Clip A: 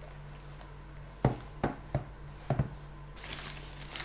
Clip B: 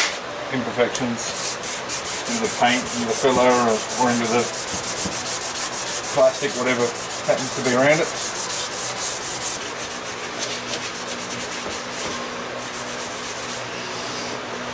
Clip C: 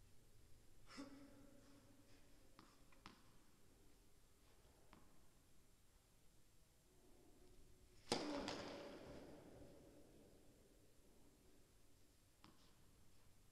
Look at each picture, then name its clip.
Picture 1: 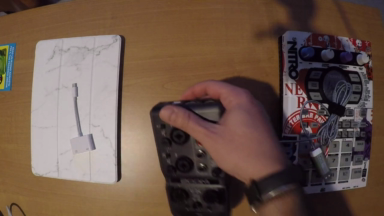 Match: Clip A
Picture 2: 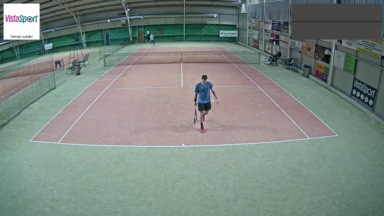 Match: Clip C